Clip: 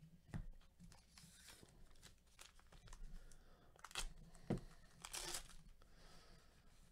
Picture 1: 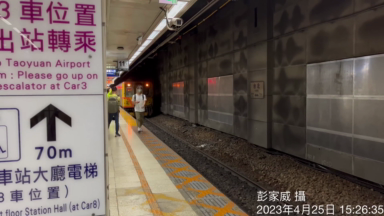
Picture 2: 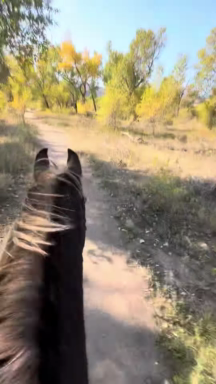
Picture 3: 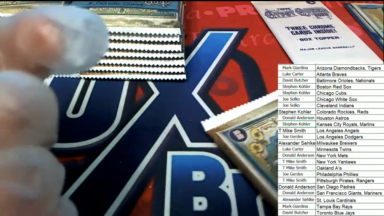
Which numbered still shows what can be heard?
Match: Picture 3